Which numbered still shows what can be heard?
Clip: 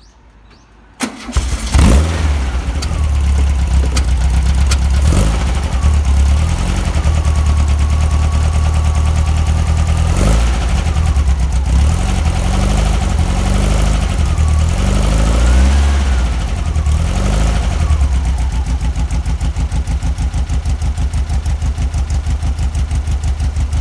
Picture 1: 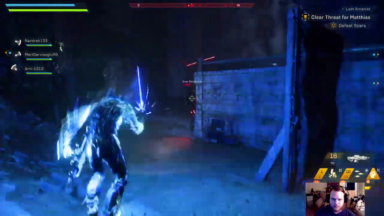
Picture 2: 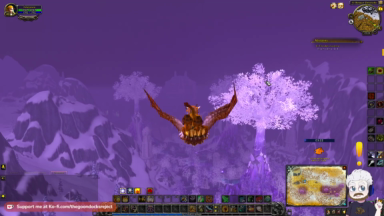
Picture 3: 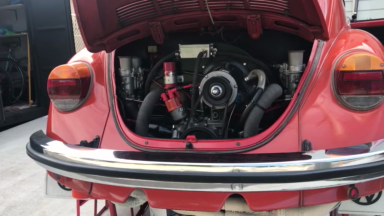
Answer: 3